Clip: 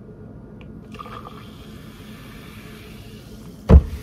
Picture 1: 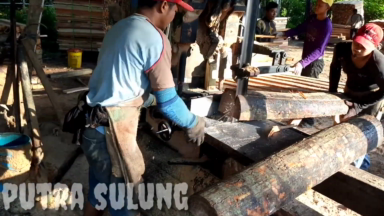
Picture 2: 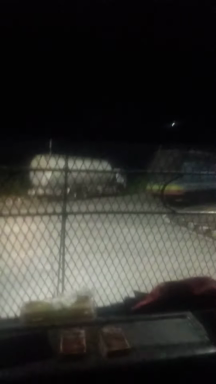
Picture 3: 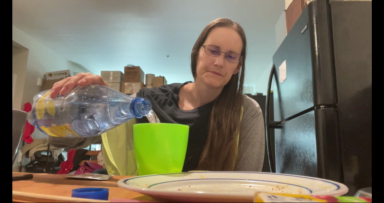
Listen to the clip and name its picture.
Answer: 3